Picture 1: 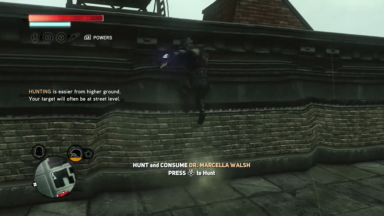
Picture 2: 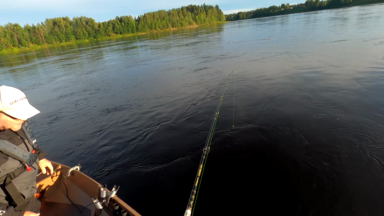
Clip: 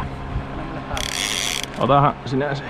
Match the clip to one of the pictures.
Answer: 2